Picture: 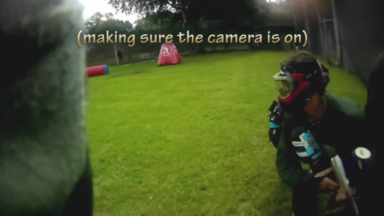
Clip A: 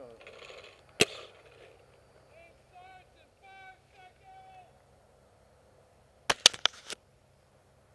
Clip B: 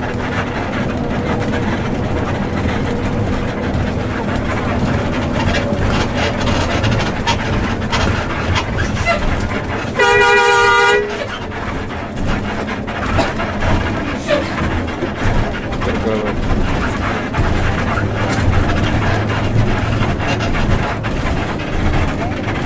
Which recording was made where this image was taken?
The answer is A